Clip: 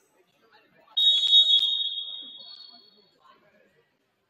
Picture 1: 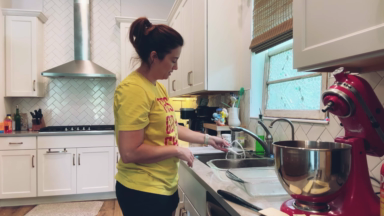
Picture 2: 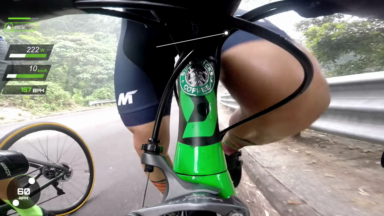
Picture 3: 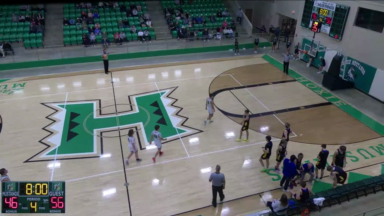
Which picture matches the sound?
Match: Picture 3